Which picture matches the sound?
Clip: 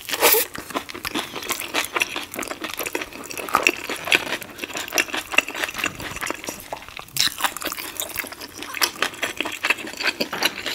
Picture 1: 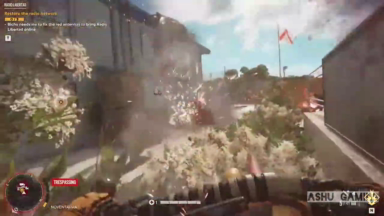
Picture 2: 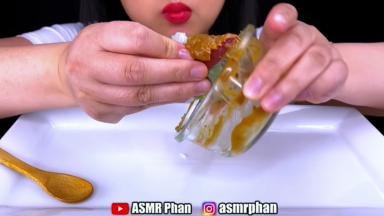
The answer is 2